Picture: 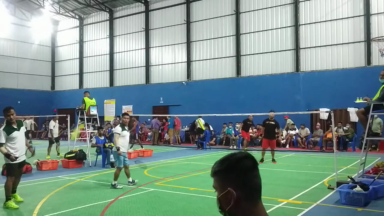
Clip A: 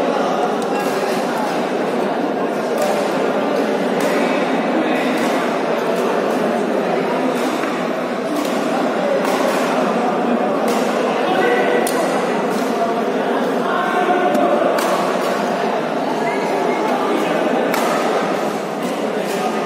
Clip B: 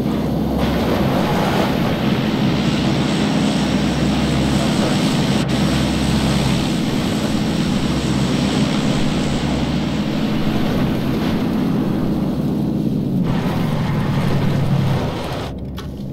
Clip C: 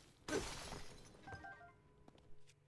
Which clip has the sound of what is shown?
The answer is A